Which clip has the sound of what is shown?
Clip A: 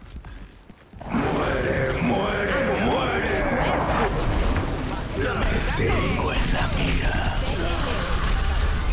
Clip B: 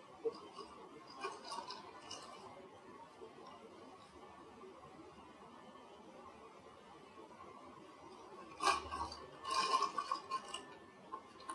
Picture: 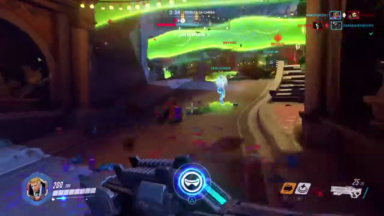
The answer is A